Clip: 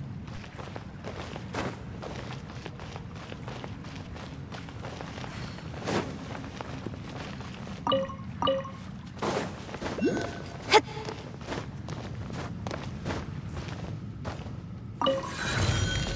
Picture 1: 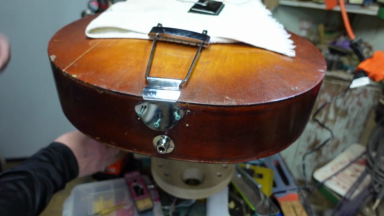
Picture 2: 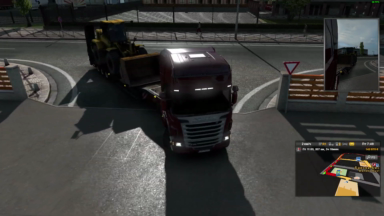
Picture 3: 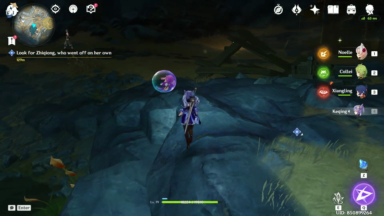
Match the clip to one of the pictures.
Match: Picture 3